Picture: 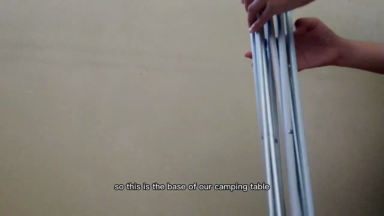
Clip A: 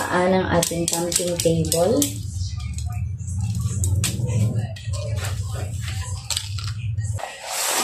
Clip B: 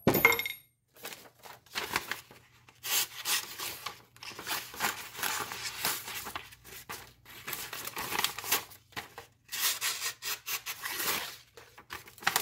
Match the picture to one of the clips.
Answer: A